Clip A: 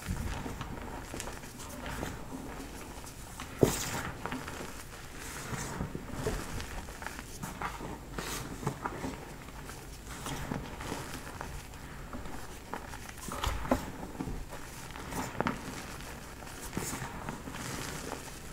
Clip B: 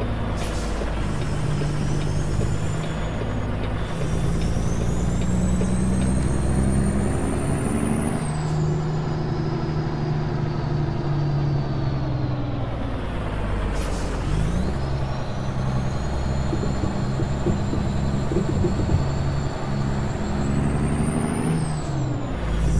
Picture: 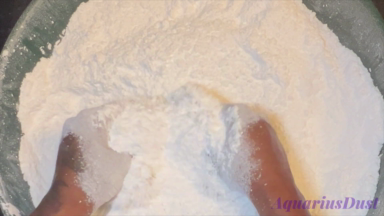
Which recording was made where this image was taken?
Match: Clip A